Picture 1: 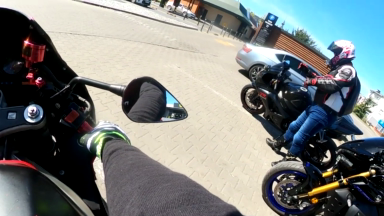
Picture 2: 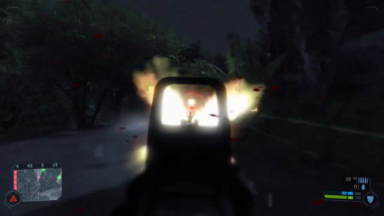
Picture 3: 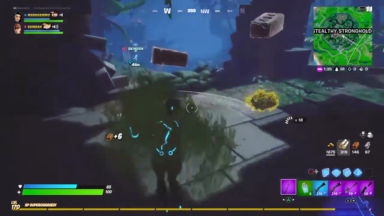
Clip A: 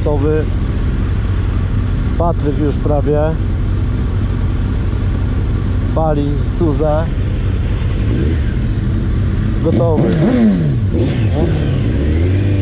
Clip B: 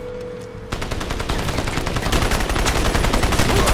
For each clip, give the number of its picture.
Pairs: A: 1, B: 2